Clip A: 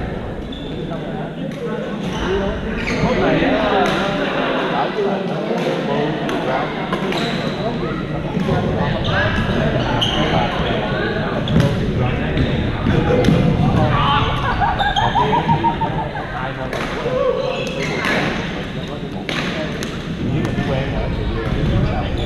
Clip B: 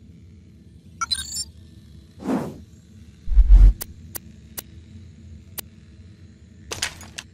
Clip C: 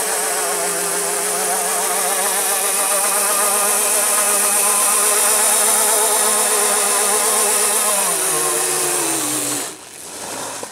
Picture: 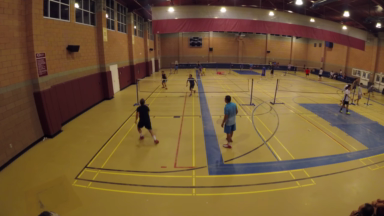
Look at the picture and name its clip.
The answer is A